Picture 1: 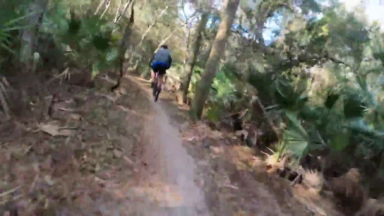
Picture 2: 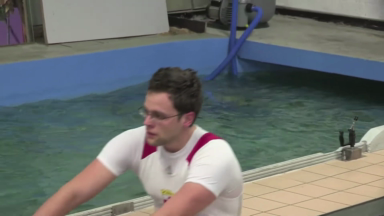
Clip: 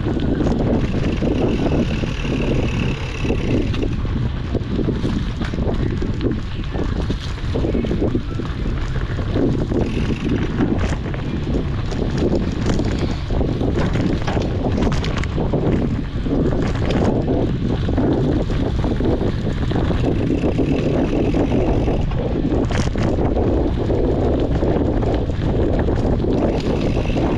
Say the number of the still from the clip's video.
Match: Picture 1